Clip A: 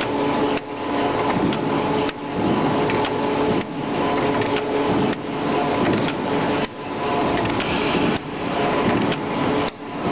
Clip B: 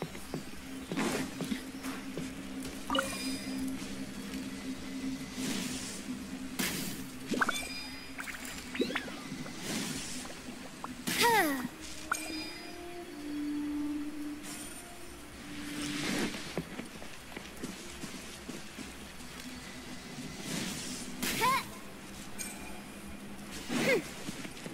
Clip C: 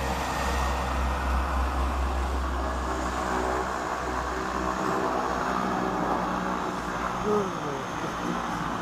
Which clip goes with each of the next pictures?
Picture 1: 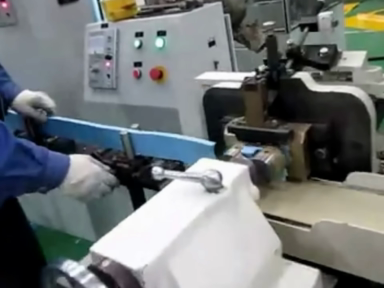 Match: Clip A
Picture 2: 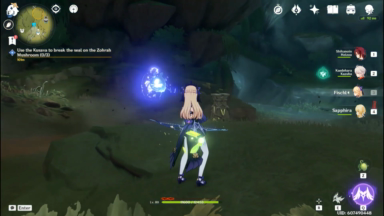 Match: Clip B